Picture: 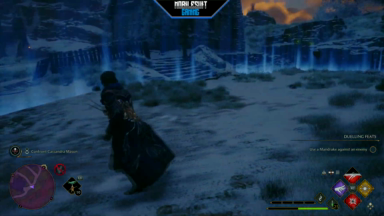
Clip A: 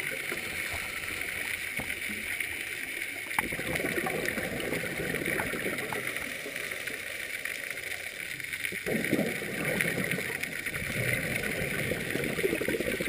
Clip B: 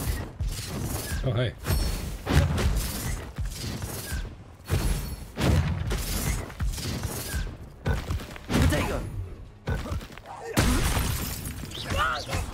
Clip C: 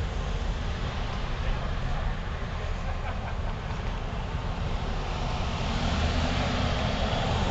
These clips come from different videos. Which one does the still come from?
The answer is B